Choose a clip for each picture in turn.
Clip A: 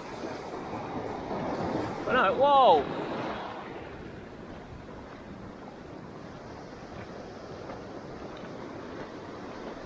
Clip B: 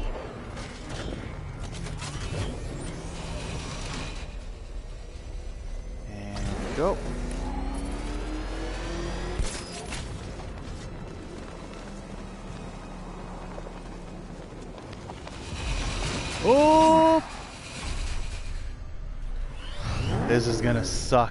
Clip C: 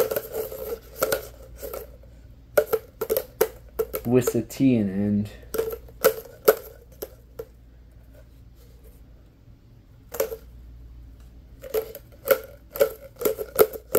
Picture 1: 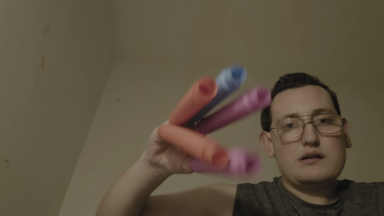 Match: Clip C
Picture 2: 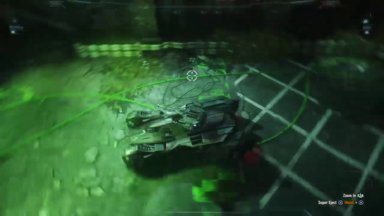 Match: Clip B